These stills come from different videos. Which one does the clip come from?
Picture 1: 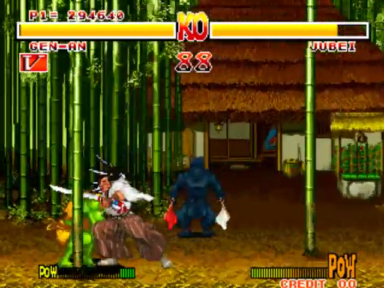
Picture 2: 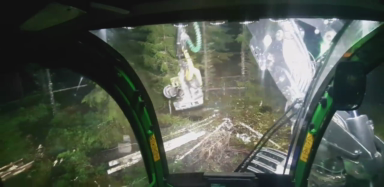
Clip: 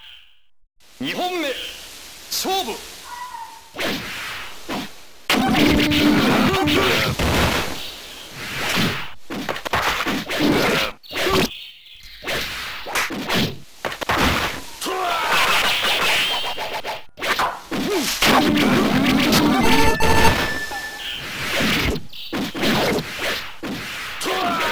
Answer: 1